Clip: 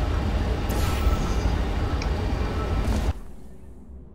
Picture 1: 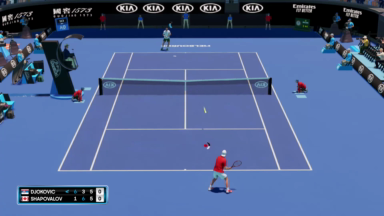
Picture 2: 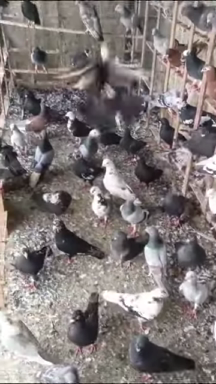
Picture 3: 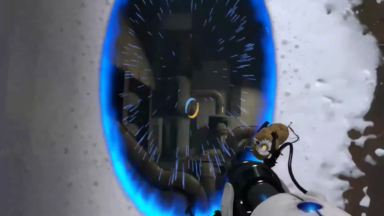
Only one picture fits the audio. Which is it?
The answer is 3